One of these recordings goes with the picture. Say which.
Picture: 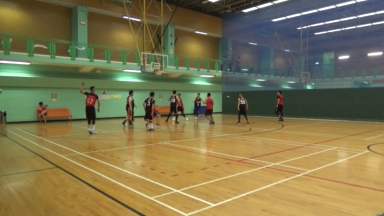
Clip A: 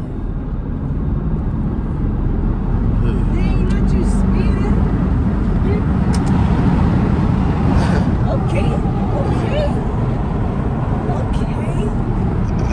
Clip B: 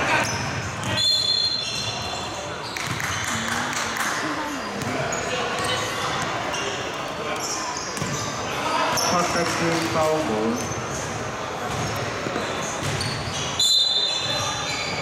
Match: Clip B